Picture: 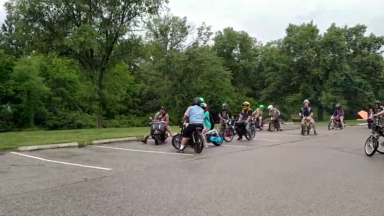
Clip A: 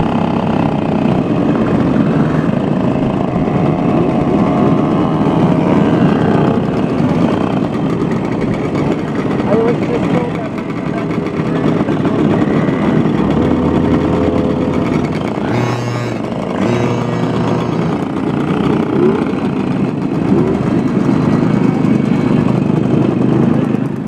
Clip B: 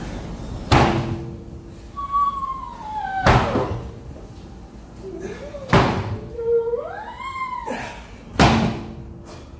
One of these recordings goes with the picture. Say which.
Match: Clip A